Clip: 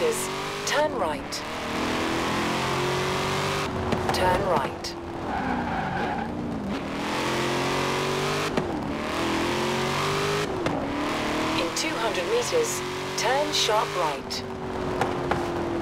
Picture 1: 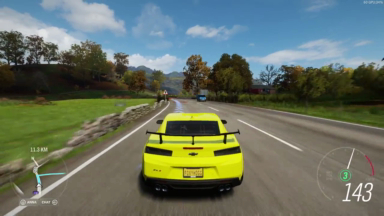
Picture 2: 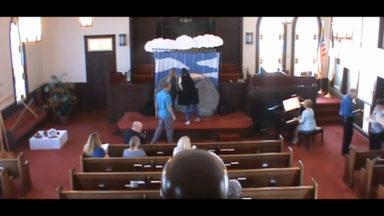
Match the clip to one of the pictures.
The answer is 1